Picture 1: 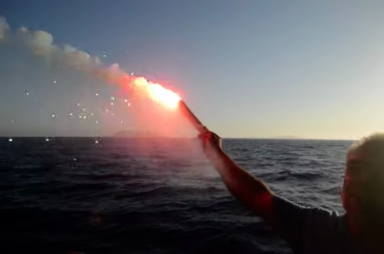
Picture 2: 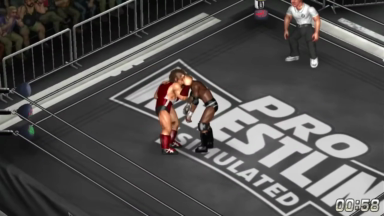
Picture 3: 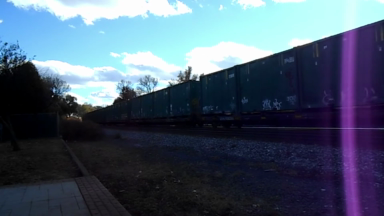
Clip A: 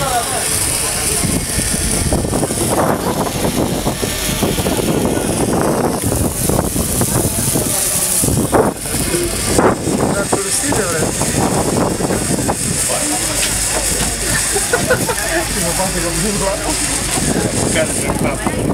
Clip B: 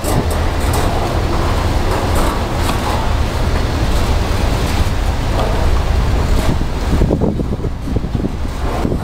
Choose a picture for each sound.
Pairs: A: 1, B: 3